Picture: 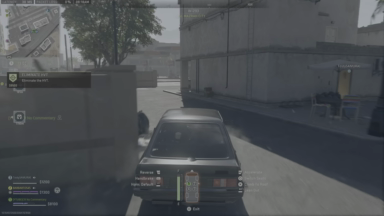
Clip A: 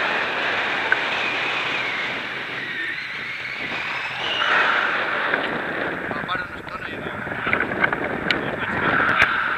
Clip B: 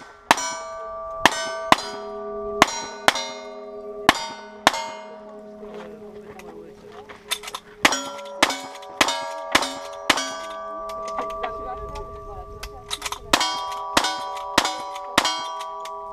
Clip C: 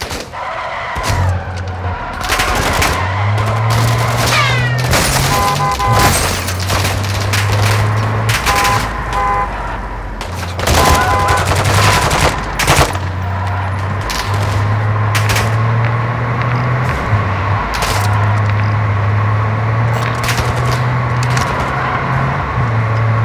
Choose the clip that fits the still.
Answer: C